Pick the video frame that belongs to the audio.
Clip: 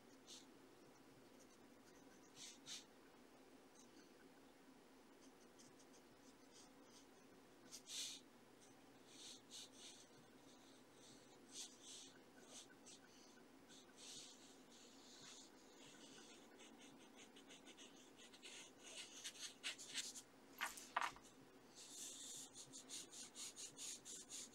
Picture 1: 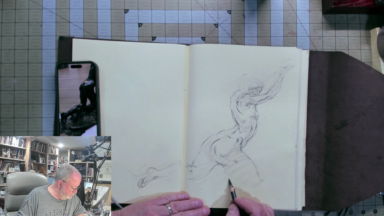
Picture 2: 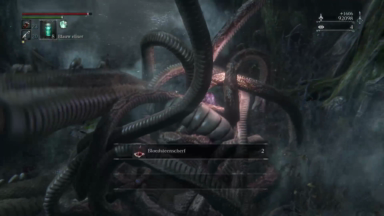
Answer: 1